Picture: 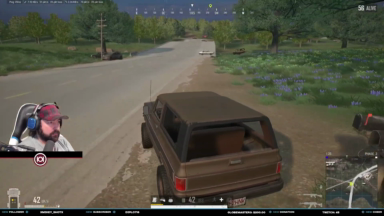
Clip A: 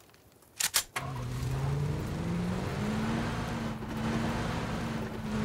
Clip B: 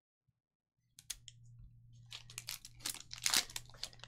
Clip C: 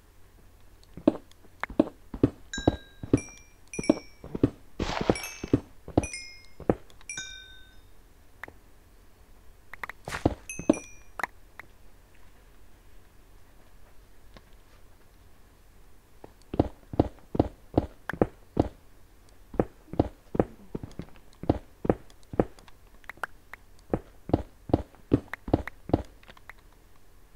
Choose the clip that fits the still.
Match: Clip A